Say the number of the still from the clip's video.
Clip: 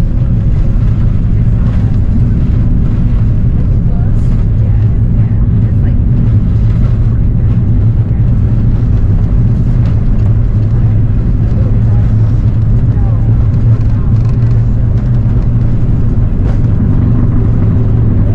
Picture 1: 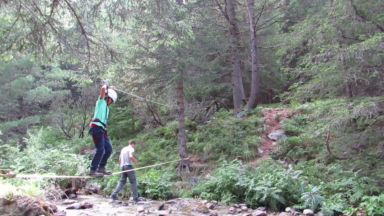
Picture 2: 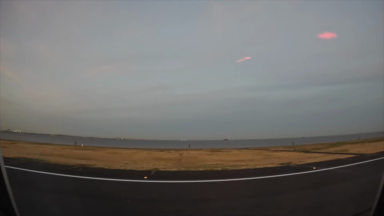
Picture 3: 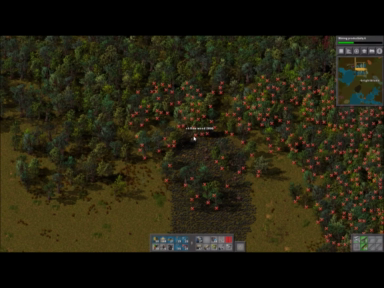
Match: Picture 2